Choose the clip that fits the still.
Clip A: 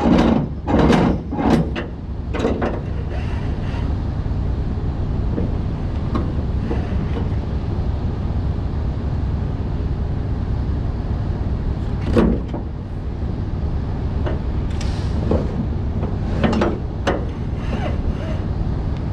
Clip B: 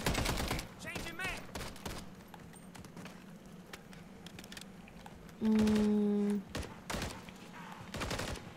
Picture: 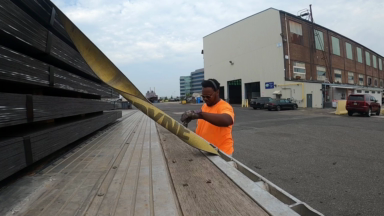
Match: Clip A